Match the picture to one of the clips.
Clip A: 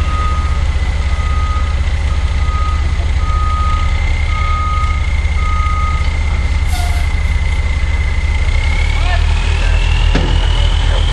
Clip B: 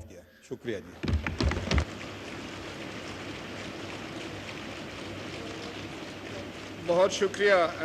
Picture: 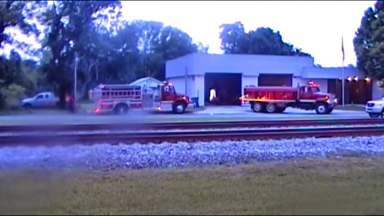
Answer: A